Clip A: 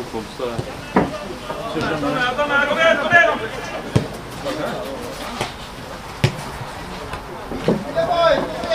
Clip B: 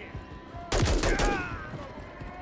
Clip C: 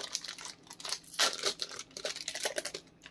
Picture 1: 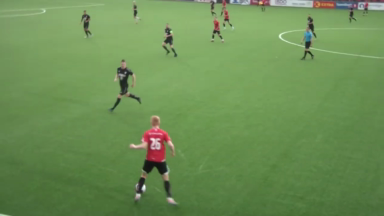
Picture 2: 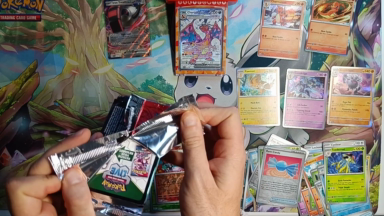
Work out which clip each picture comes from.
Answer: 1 A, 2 C